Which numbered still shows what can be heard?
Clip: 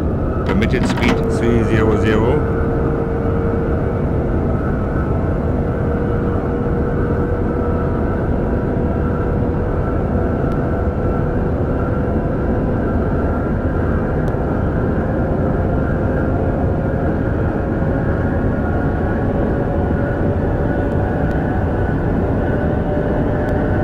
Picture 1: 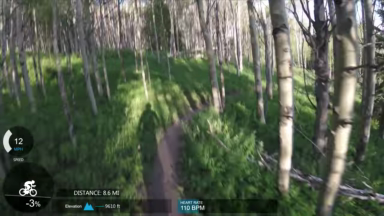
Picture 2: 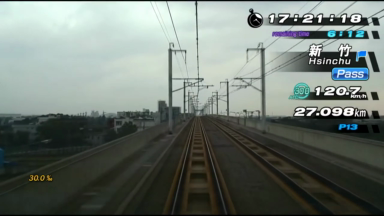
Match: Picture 2